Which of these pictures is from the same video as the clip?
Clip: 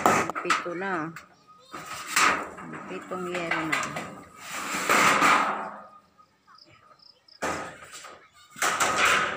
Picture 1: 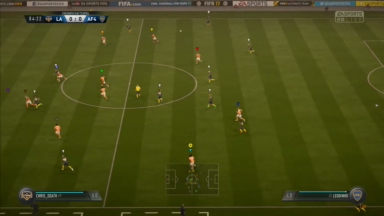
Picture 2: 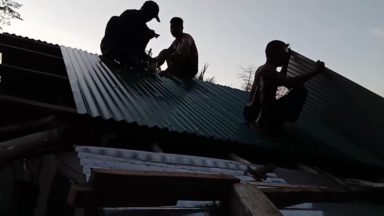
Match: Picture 2